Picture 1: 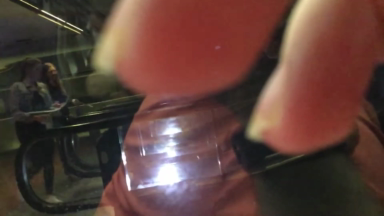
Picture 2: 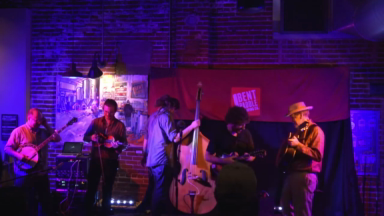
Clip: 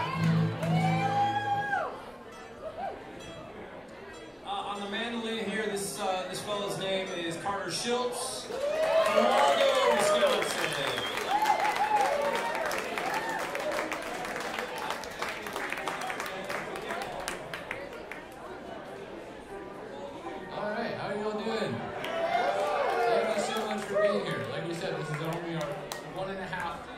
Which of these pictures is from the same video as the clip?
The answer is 2